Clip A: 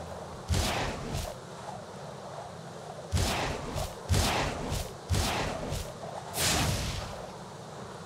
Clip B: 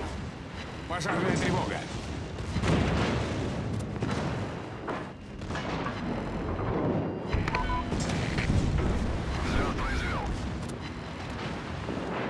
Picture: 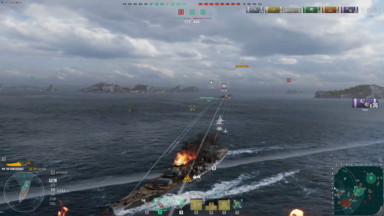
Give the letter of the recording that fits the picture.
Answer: B